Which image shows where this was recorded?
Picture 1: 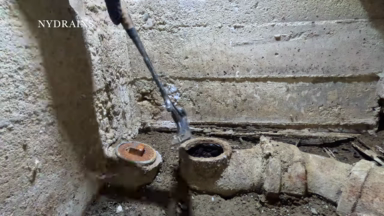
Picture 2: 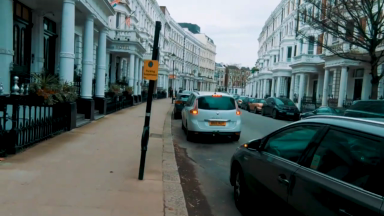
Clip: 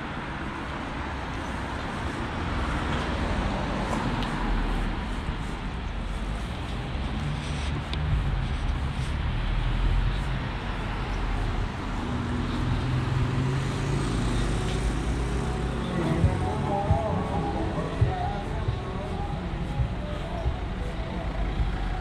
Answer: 2